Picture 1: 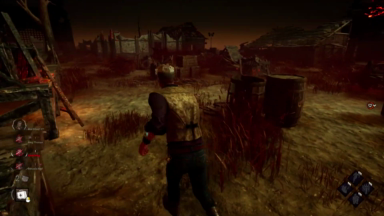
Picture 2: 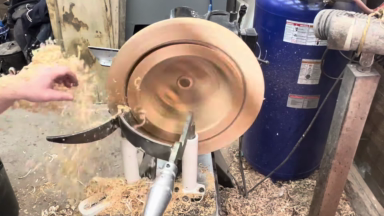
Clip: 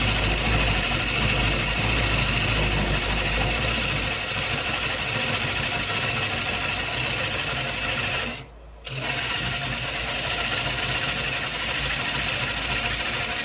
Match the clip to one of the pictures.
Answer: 2